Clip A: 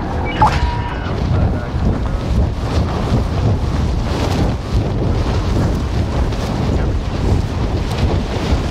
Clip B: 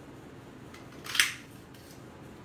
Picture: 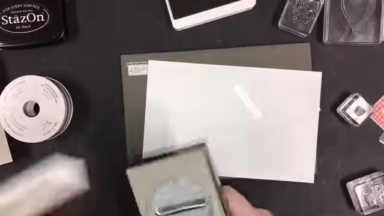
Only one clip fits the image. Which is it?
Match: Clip B